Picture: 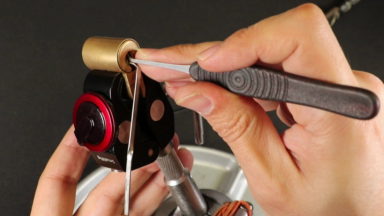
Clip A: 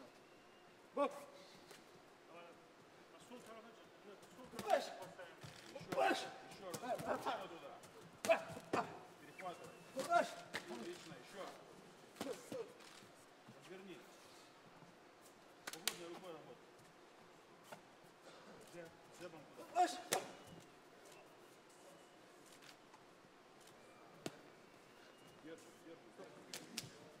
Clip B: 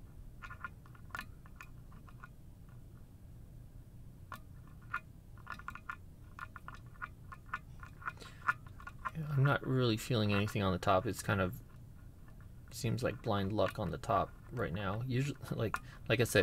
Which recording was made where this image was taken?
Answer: B